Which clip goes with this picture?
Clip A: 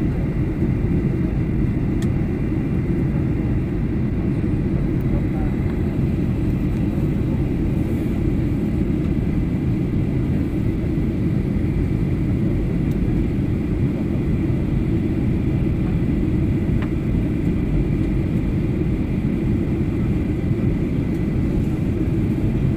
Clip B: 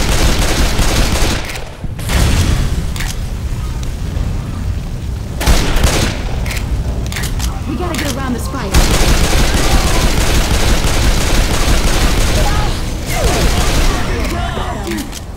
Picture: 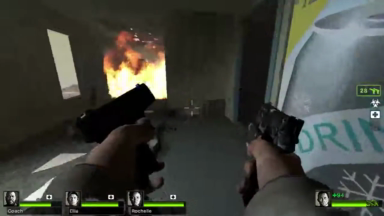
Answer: B